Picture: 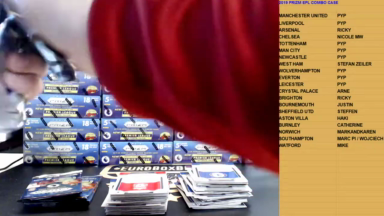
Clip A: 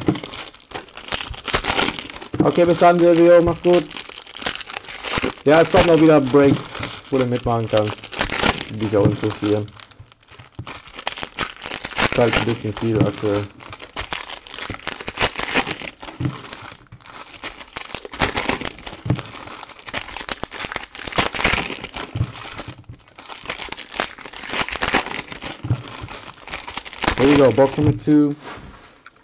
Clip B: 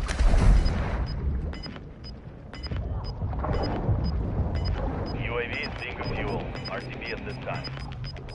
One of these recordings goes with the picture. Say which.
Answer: A